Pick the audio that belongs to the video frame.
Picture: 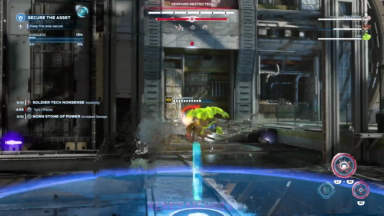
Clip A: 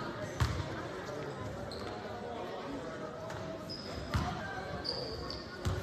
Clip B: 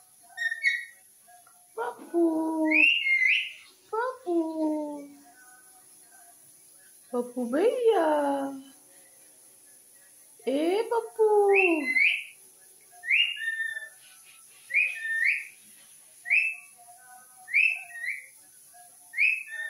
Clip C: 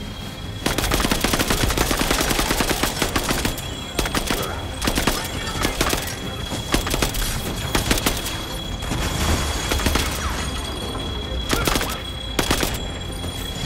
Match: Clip C